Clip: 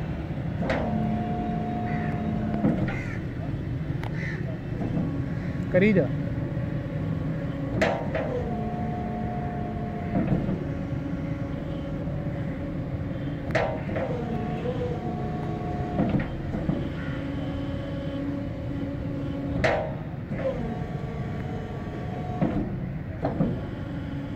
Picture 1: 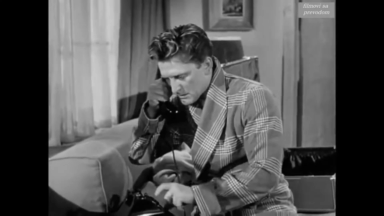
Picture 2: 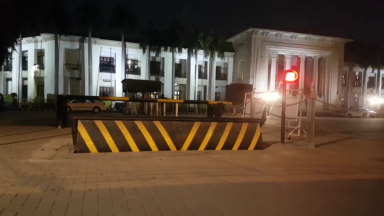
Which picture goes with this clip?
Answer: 2